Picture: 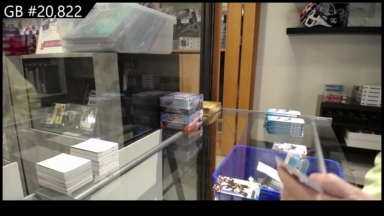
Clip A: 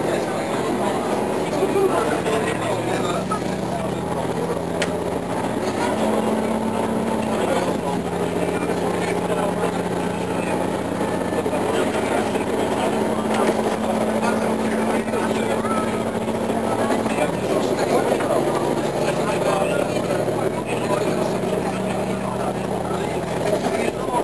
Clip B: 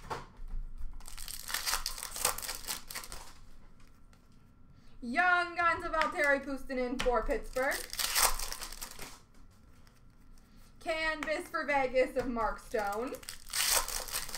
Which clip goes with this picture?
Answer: B